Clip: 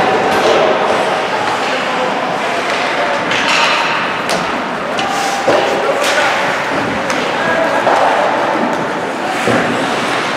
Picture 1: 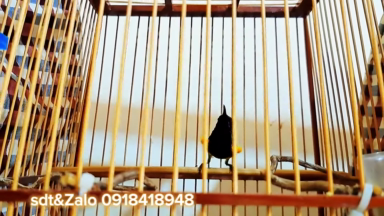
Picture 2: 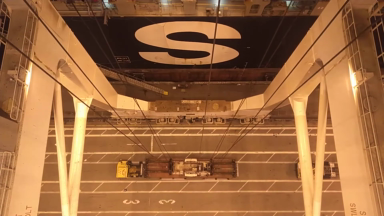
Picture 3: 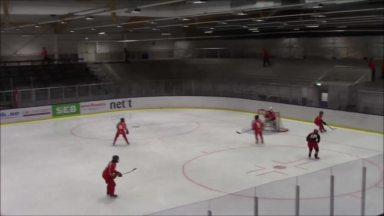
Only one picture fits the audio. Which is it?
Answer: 3